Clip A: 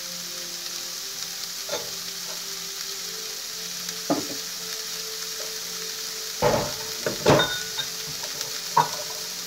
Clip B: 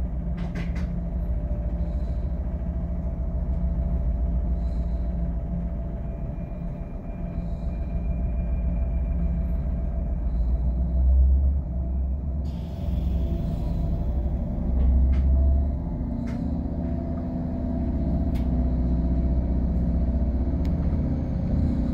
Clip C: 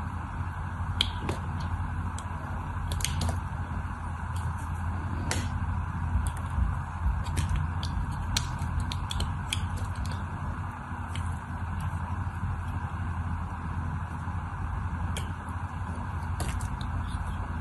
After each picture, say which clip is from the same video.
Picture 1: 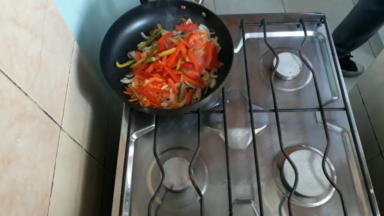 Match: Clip A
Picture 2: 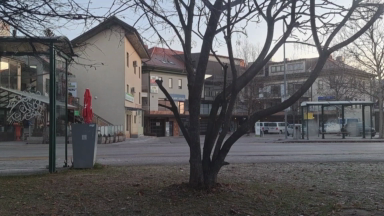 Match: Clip B